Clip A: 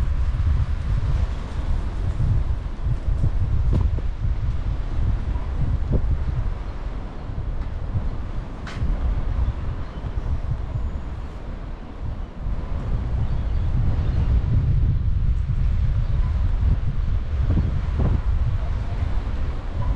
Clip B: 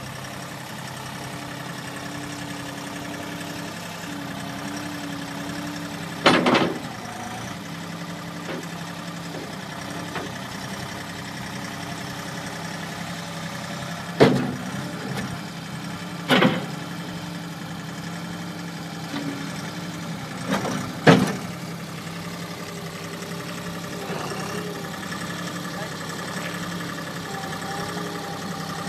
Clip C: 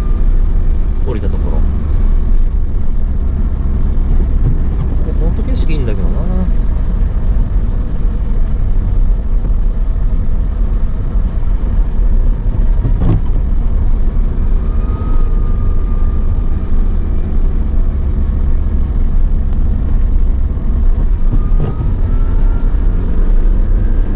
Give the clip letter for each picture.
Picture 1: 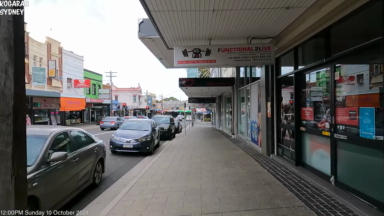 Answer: A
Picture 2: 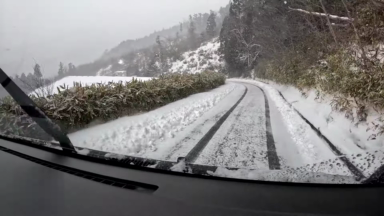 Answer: C